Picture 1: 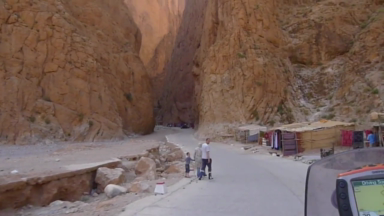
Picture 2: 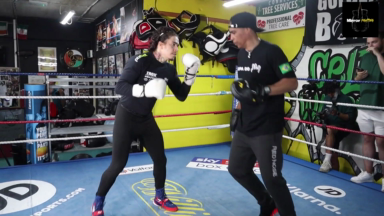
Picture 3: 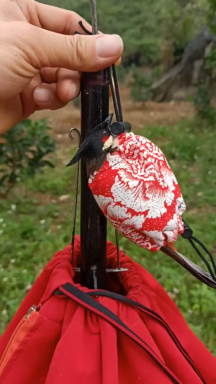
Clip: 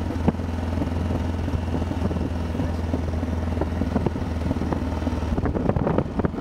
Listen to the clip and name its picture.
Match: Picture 1